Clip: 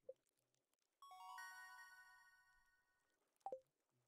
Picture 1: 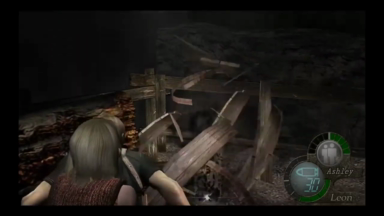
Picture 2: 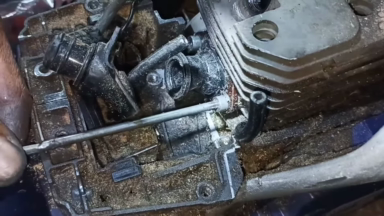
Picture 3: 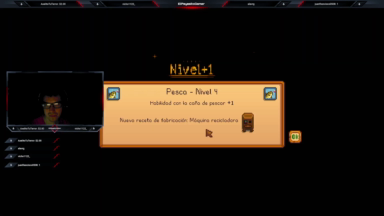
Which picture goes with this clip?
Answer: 3